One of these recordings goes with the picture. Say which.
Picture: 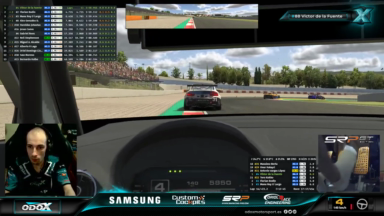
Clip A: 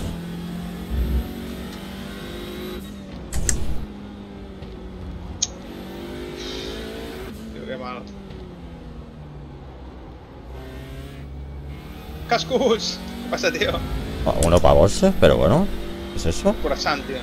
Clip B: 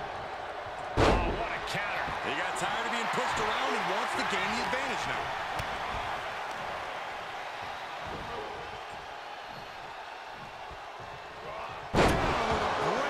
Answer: A